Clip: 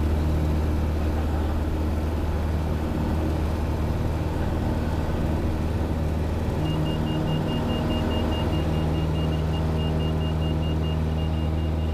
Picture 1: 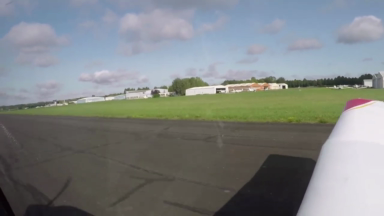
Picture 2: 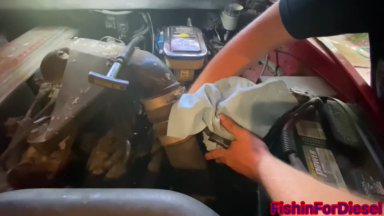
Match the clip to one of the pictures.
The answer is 1